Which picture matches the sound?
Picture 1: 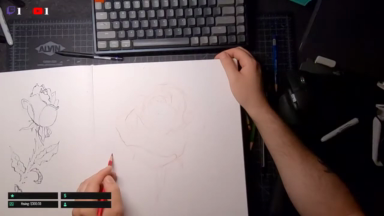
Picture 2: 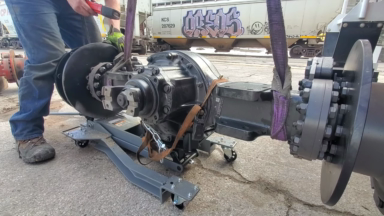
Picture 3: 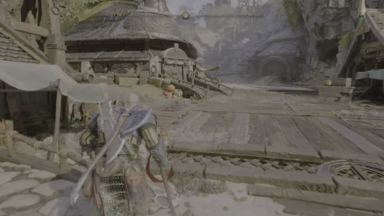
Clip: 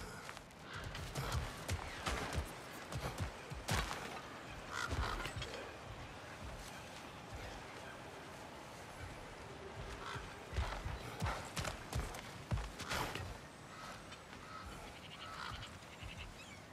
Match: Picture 3